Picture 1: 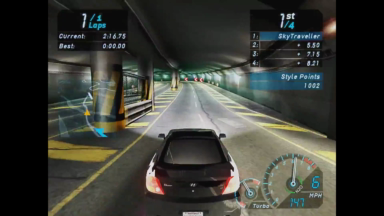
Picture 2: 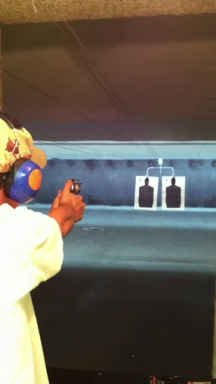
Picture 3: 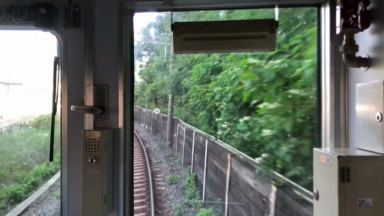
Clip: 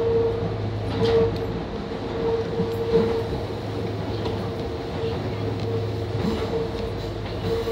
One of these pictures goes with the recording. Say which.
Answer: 3